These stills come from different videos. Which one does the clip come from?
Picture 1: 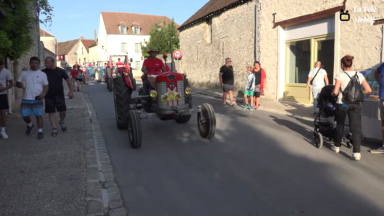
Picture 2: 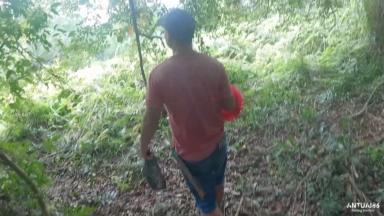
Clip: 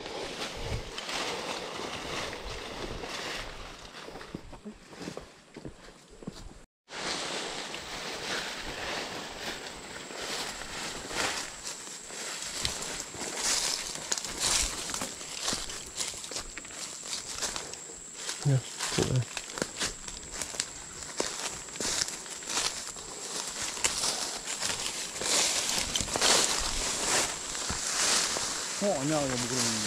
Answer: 2